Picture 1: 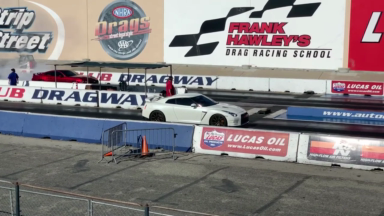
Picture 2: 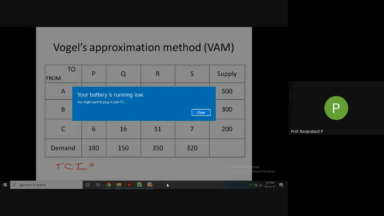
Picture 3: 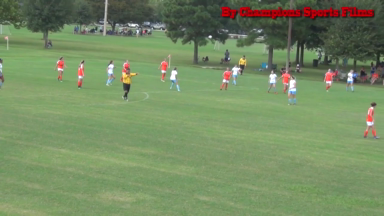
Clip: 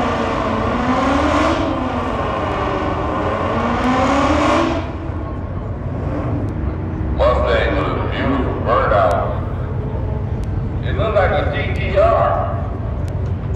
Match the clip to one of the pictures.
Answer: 1